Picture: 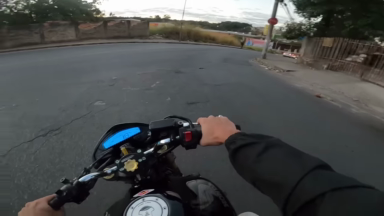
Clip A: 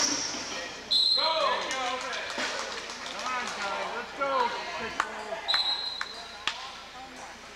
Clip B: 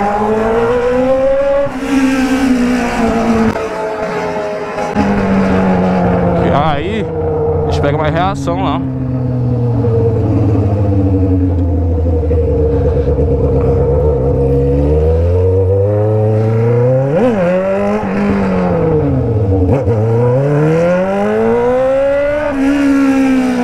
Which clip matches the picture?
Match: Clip B